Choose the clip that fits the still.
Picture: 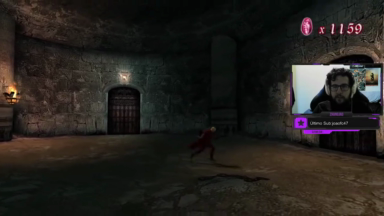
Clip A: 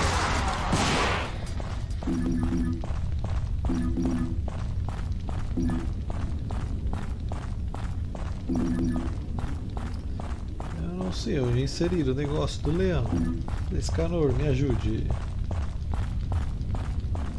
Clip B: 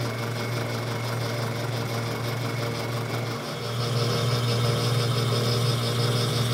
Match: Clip A